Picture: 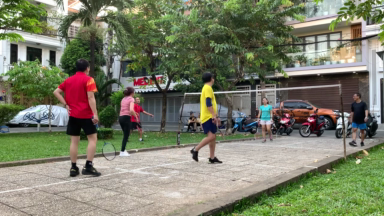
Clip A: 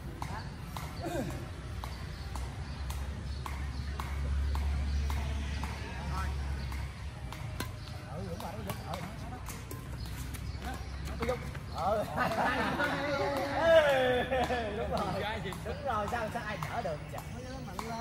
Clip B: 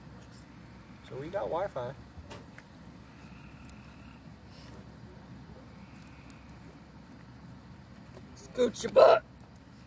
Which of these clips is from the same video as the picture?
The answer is A